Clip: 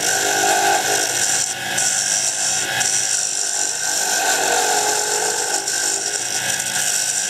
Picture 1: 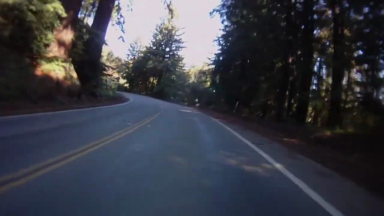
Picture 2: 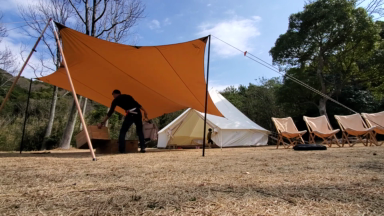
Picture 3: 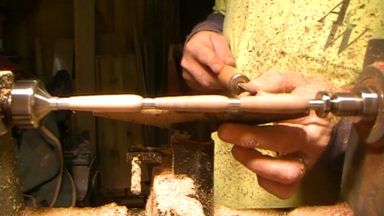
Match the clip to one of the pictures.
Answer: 3